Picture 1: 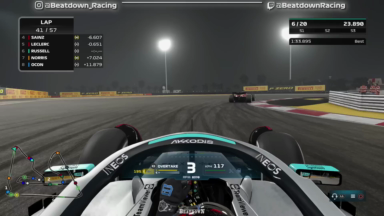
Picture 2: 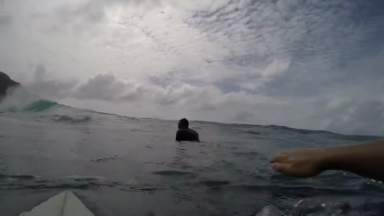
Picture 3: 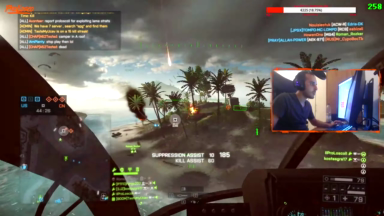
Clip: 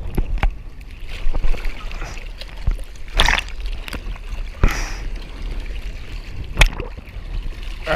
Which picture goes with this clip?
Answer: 2